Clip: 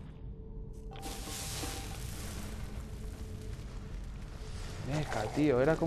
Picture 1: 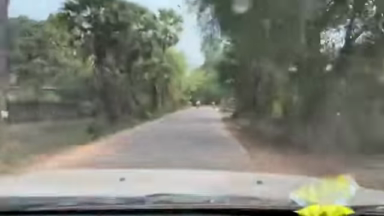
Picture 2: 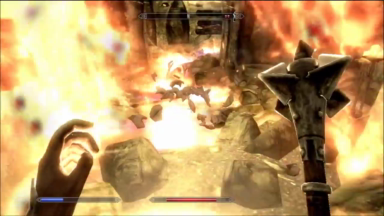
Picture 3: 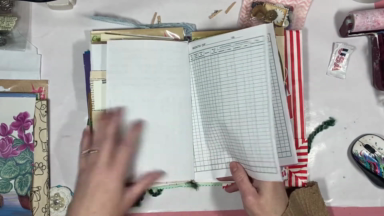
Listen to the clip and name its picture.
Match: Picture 2